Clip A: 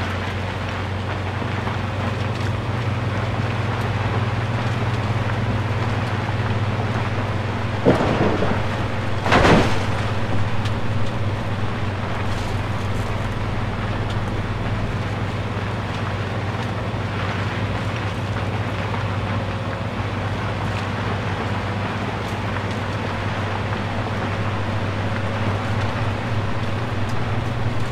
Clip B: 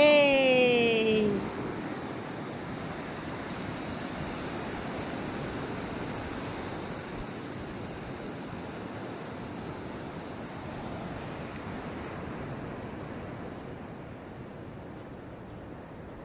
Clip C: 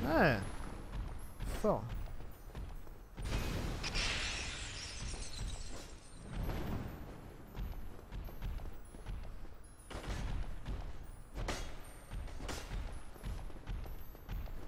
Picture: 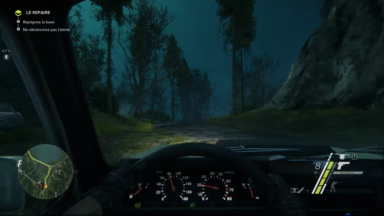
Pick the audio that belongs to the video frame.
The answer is A